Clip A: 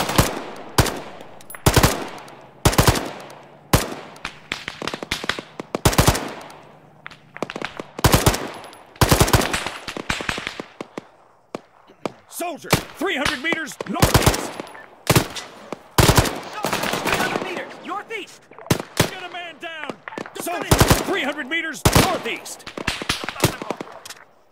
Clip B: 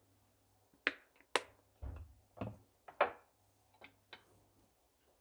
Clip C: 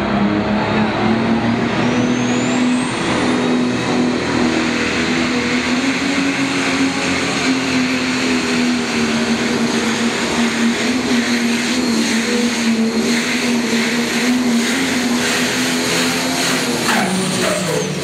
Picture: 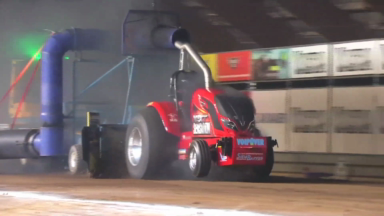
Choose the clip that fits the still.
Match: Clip C